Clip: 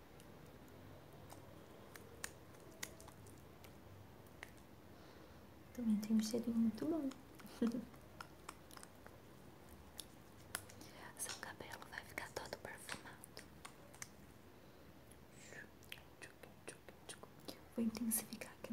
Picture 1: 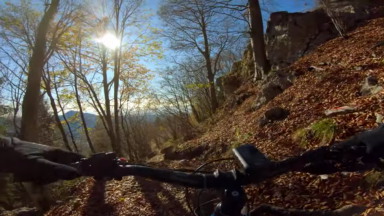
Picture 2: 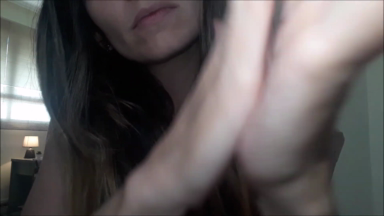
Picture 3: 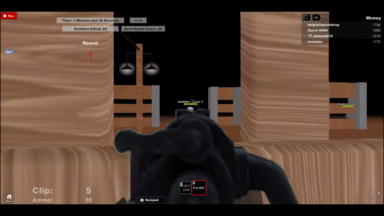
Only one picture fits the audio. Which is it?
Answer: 2